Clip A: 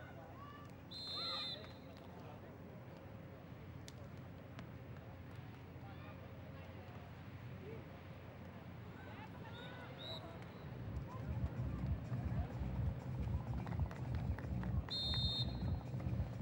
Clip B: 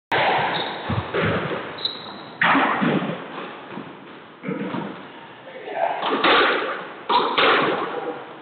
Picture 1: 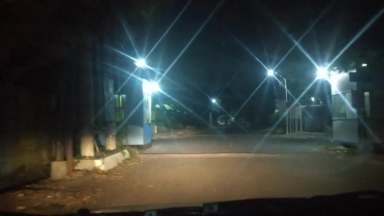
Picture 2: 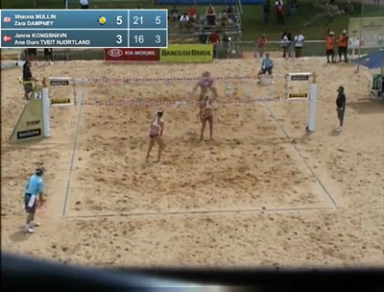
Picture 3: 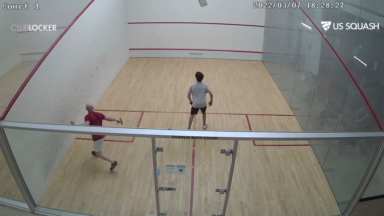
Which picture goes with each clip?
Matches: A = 2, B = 3